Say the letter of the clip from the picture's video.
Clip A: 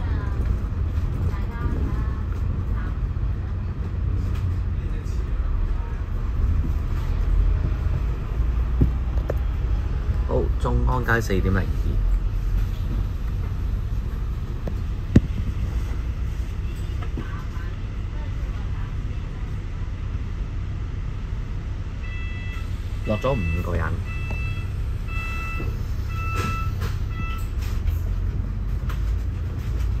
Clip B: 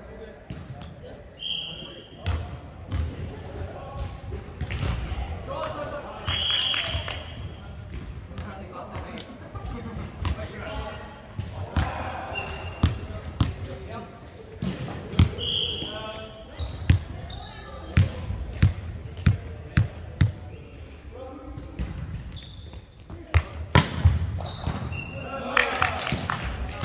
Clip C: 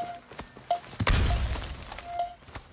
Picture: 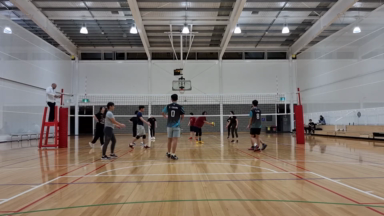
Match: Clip B